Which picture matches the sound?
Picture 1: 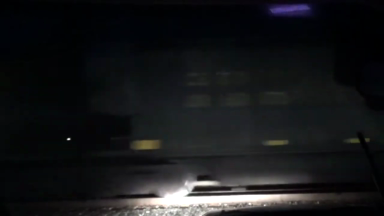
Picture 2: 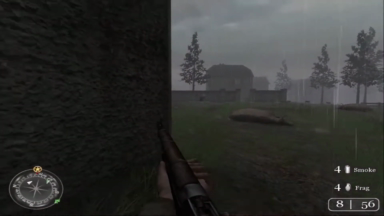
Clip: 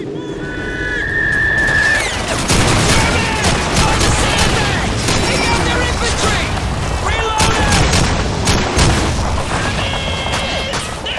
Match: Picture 2